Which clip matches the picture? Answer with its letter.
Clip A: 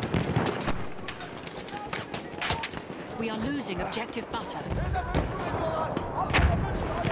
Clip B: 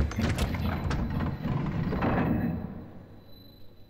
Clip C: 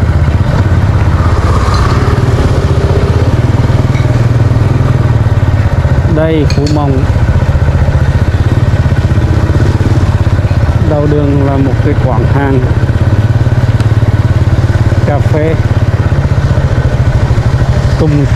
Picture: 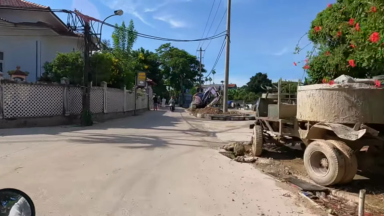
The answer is C